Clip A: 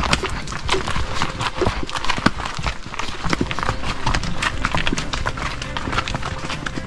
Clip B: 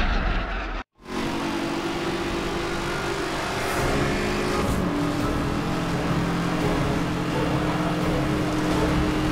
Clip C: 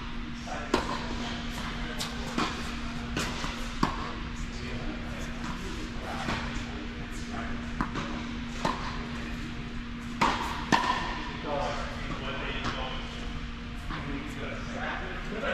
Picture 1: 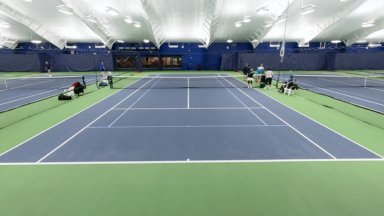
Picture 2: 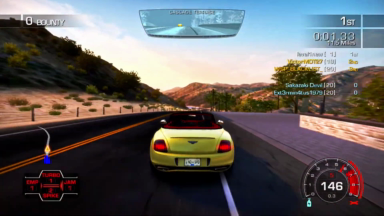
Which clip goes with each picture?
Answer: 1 C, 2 B